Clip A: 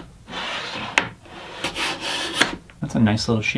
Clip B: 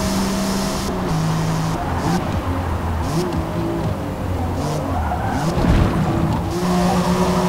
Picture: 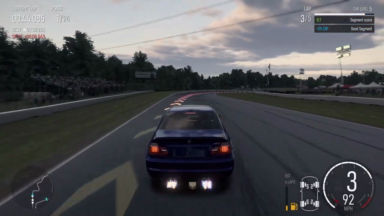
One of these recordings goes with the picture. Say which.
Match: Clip B